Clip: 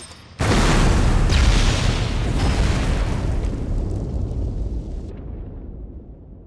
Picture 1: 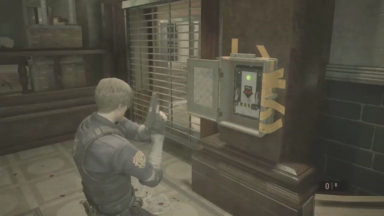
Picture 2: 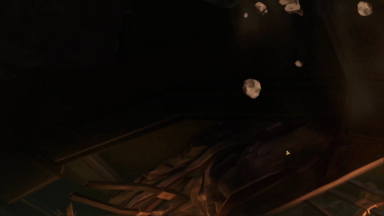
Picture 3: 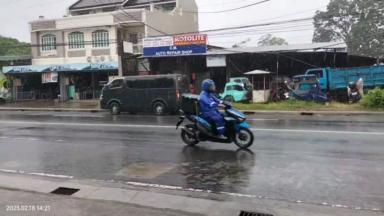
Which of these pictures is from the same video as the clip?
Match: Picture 2